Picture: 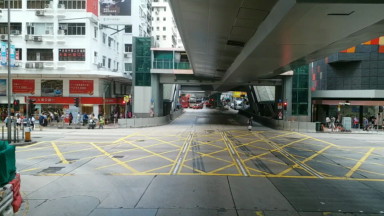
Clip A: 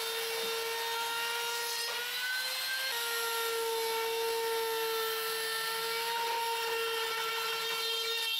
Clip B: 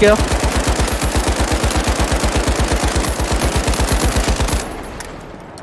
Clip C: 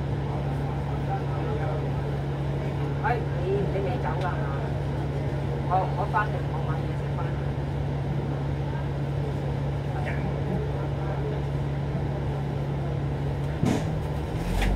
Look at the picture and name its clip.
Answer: C